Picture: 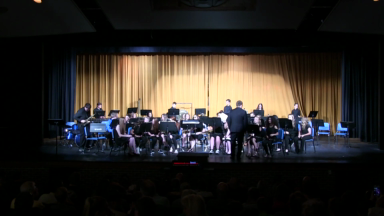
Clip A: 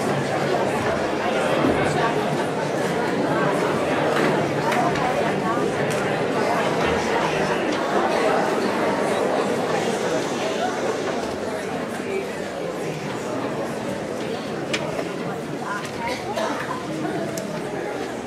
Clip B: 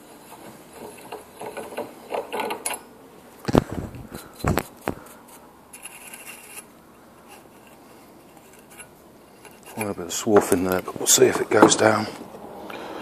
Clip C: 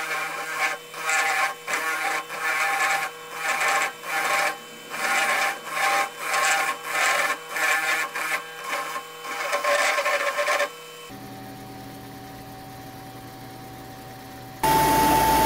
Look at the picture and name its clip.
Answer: A